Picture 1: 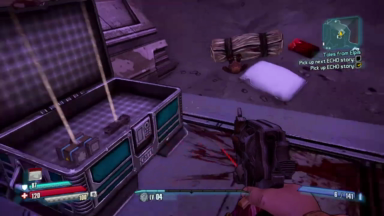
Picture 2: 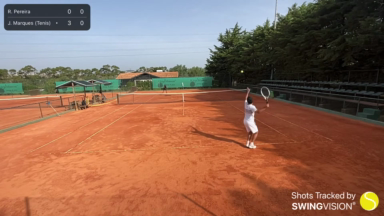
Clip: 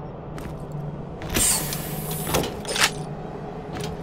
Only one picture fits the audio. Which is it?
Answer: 1